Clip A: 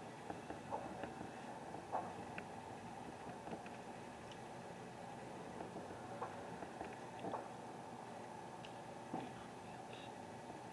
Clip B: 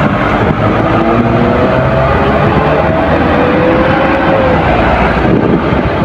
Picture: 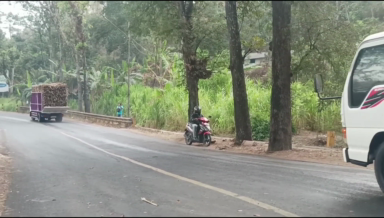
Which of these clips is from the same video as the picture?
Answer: B